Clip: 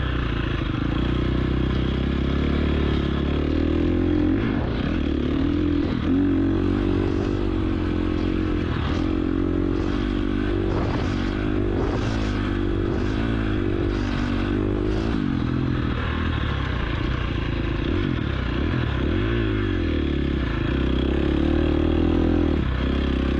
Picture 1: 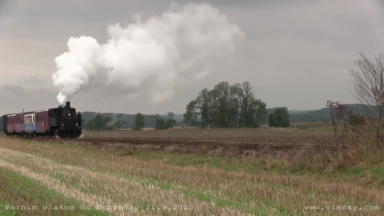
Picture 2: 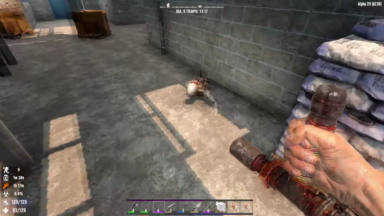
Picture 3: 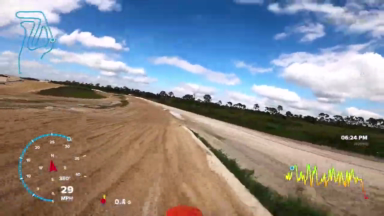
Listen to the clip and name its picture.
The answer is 3